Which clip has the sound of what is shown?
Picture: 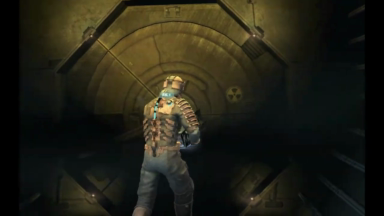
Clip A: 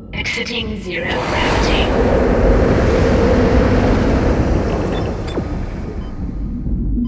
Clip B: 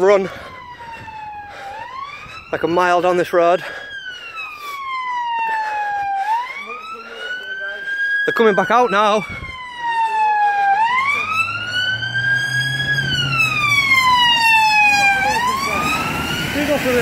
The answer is A